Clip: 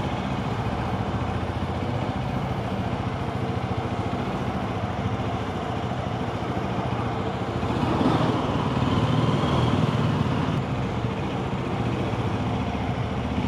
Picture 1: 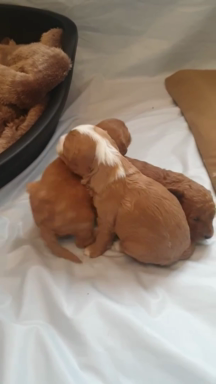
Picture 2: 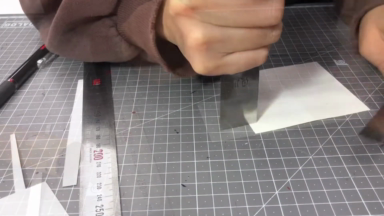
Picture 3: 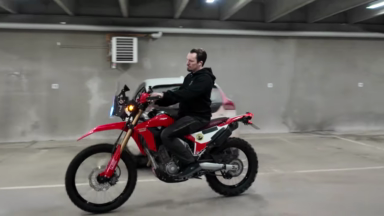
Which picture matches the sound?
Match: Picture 3